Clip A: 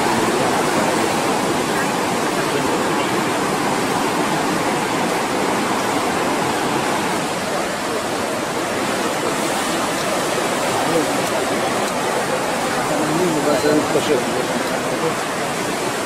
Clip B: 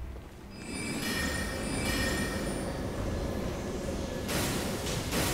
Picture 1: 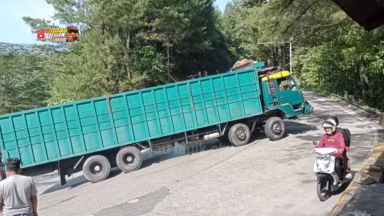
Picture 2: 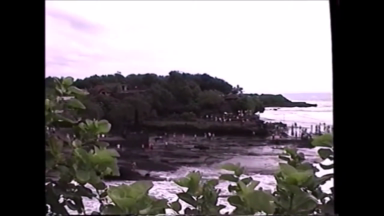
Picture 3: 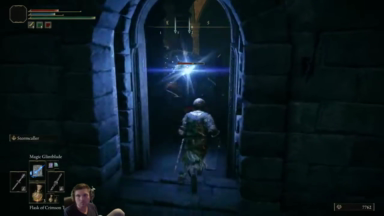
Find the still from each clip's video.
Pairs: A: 2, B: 3